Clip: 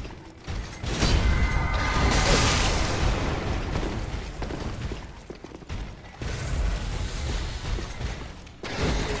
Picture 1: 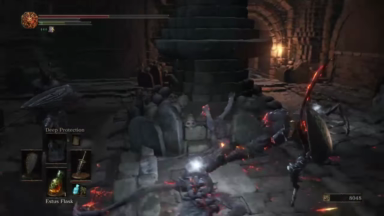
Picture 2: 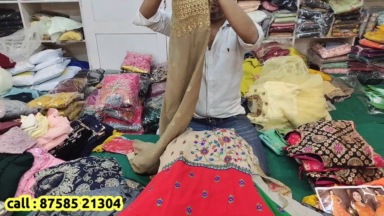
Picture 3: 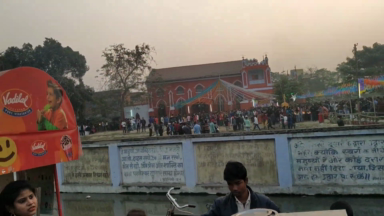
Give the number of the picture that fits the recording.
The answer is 1